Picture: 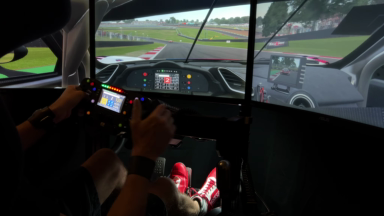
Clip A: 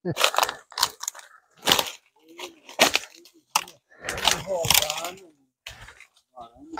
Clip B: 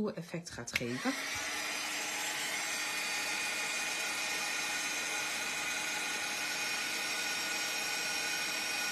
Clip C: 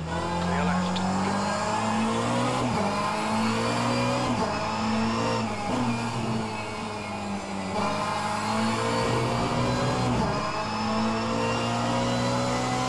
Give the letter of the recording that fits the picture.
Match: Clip C